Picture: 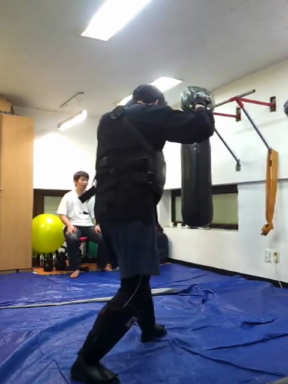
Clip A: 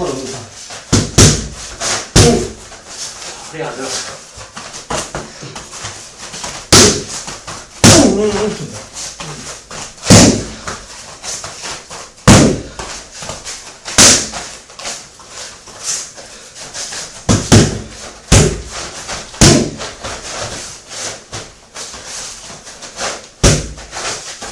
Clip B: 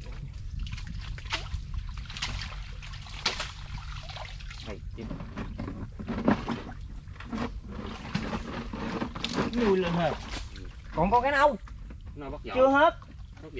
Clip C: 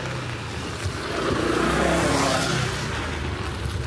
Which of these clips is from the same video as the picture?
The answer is A